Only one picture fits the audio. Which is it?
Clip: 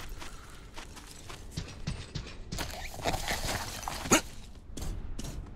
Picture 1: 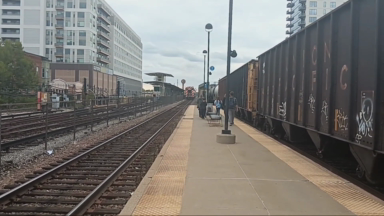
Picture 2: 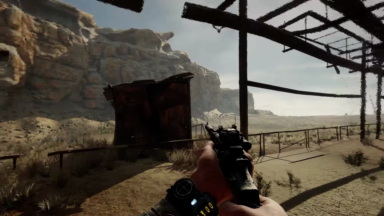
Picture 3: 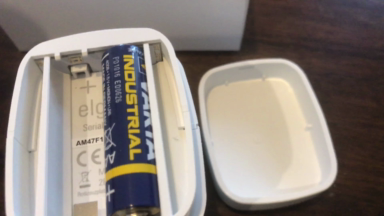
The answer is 2